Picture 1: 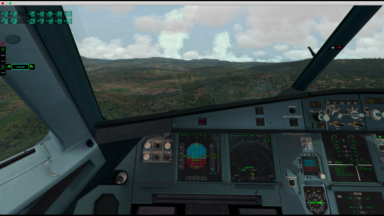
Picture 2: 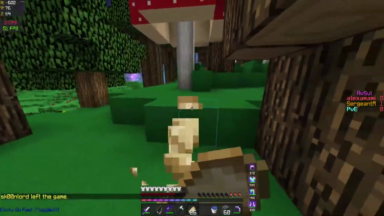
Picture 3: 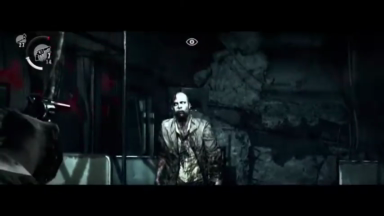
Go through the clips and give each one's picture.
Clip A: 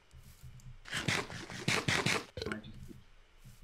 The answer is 2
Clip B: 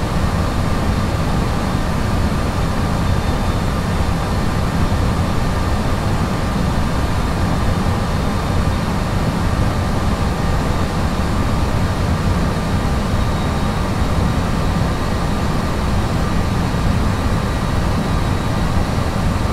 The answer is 1